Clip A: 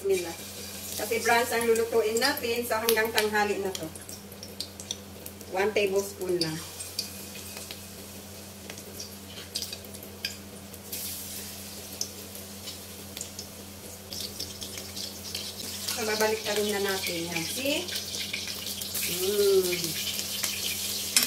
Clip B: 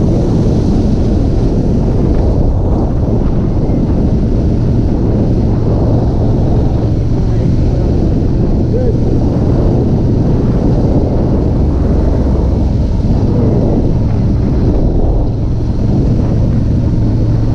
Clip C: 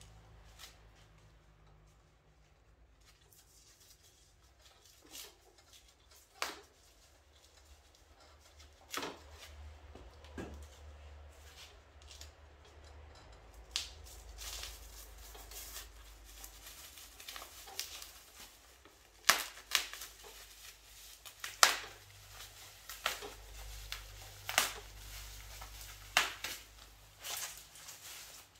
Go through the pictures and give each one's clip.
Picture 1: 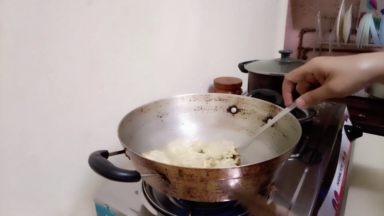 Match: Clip A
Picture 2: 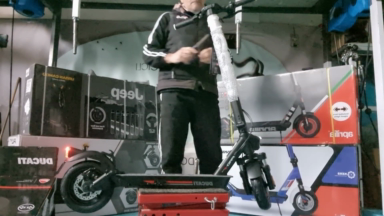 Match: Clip C